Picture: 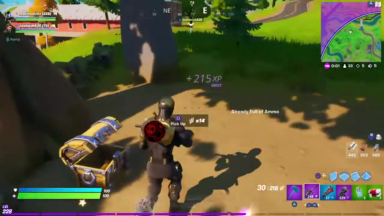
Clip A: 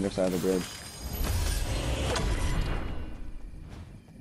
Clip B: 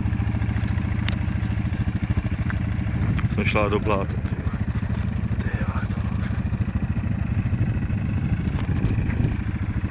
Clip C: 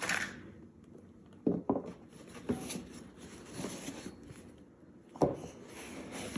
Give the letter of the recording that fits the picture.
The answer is A